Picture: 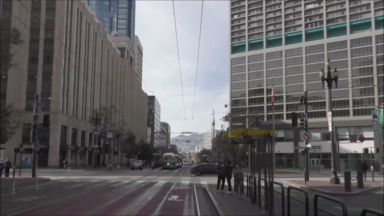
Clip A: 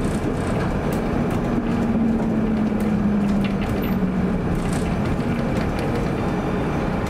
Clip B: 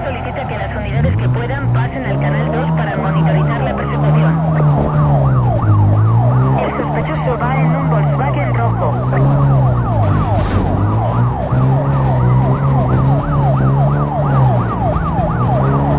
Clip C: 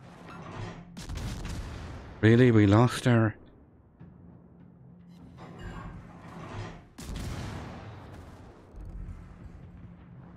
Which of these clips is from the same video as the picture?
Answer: A